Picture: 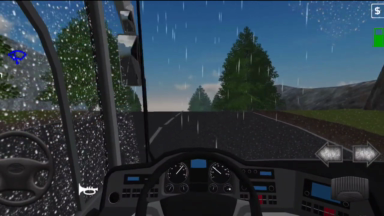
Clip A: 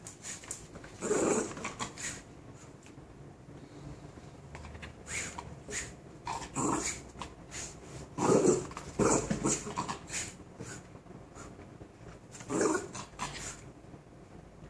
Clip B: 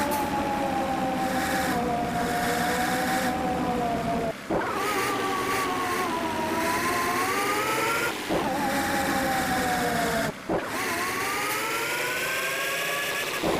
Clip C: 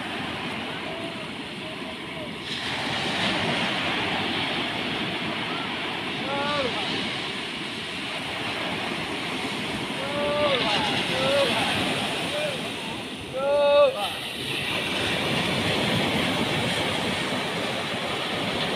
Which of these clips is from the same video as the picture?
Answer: B